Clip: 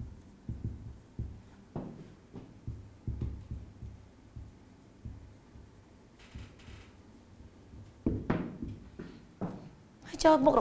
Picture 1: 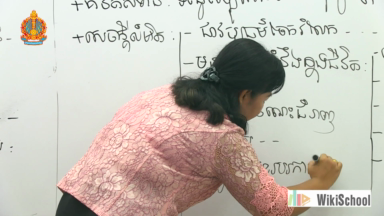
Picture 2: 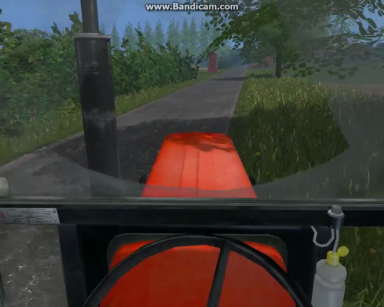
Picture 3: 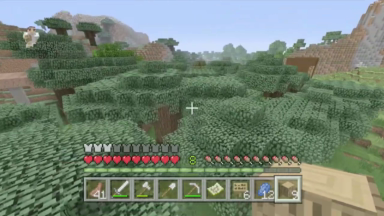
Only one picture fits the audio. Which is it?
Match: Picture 1